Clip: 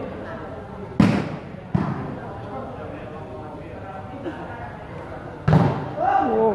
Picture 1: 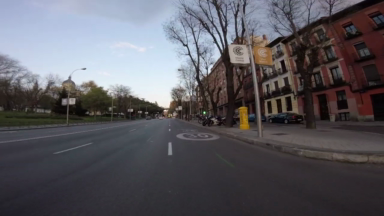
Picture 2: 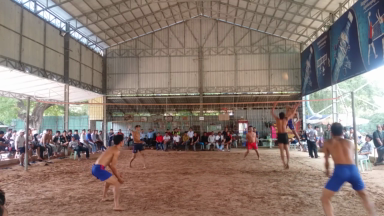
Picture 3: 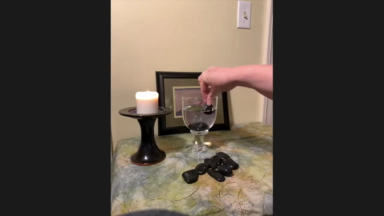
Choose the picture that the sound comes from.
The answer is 2